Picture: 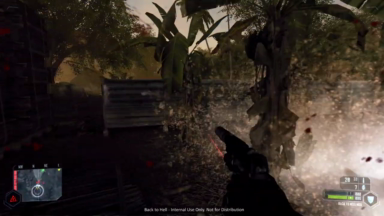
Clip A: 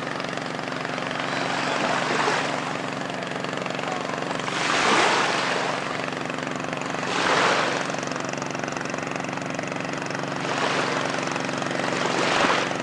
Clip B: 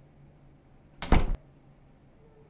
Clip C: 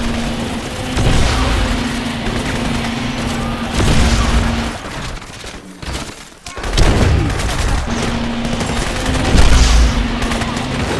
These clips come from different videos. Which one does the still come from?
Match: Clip C